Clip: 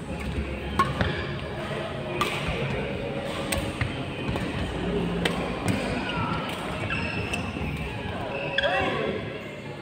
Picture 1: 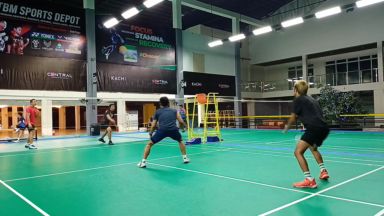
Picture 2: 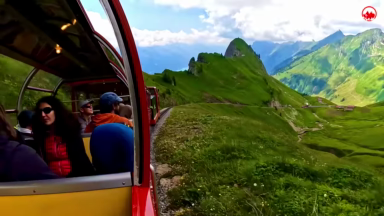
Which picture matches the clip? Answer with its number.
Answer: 1